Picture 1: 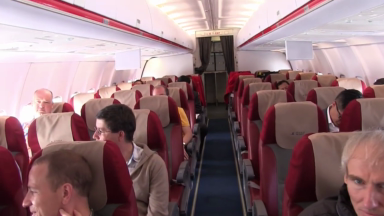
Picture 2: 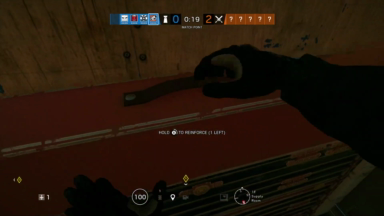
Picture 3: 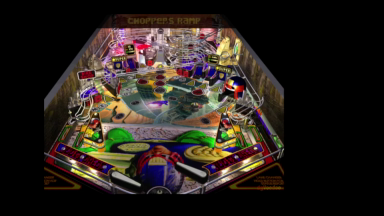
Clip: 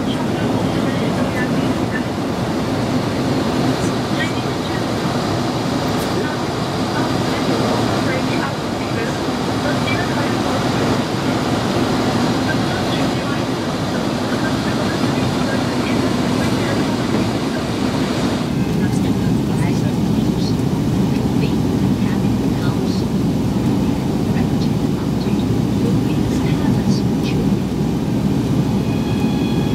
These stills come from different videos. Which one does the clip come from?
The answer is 1